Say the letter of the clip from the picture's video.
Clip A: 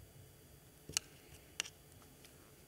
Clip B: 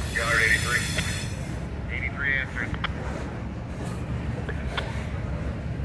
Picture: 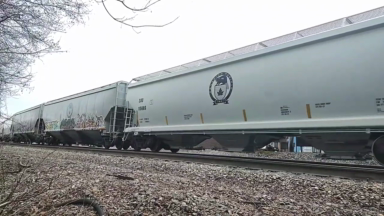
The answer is B